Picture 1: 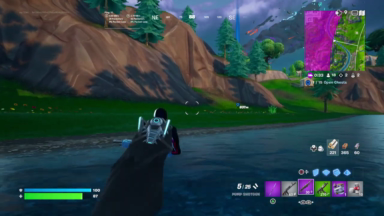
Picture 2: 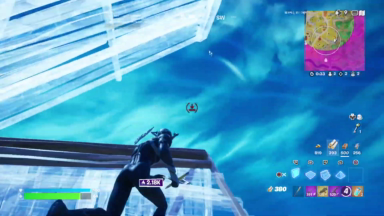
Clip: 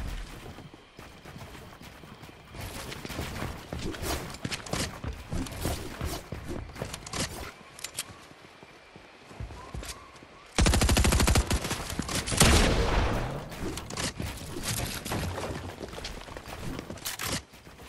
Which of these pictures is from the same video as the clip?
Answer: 2